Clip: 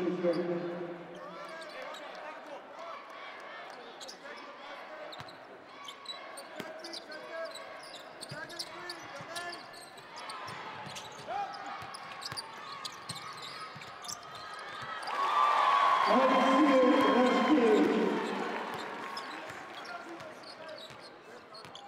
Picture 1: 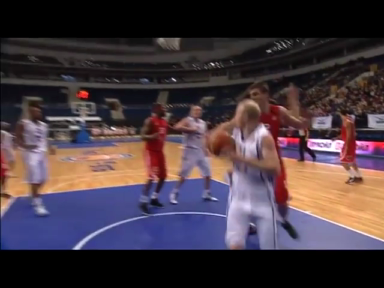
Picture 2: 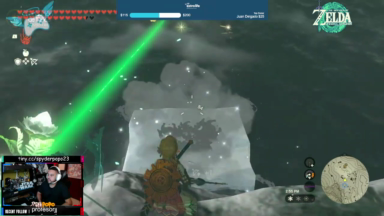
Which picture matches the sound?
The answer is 1